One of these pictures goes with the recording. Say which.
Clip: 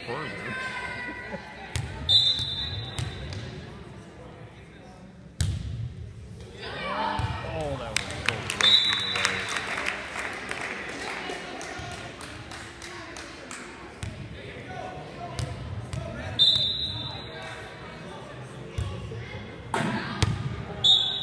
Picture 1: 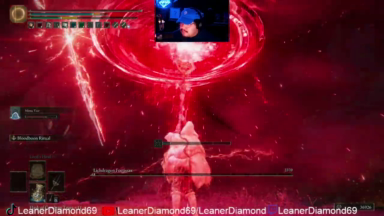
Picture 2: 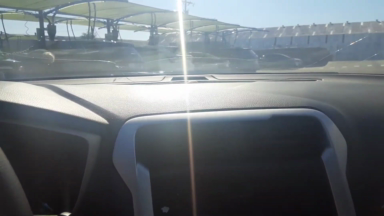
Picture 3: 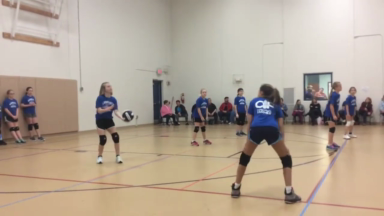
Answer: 3